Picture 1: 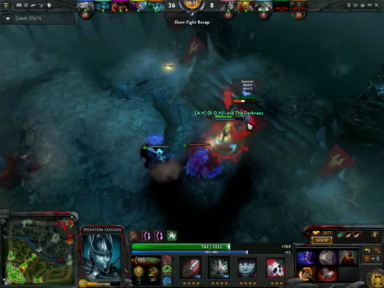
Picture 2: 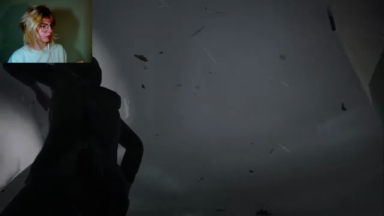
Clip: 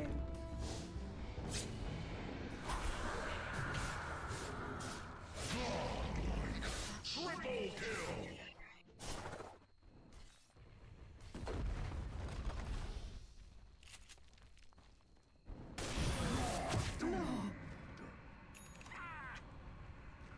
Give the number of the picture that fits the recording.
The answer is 1